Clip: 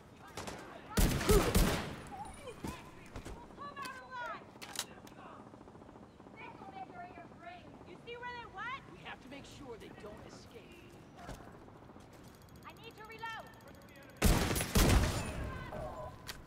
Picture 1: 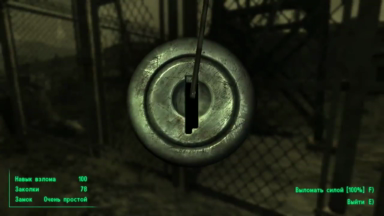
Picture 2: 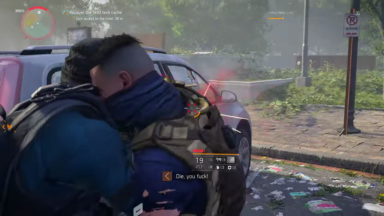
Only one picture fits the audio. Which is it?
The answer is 2